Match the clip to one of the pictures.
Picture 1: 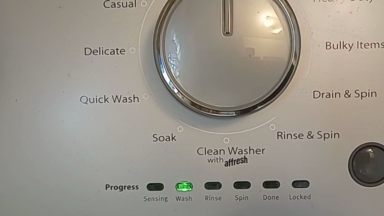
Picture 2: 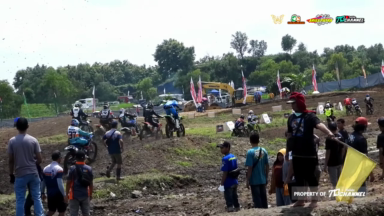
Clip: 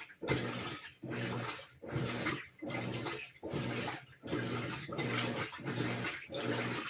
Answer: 1